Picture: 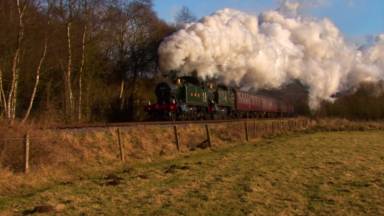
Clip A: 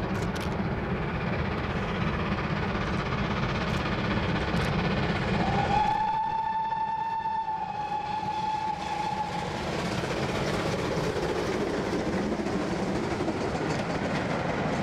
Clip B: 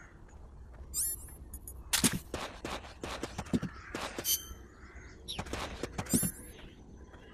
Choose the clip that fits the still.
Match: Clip A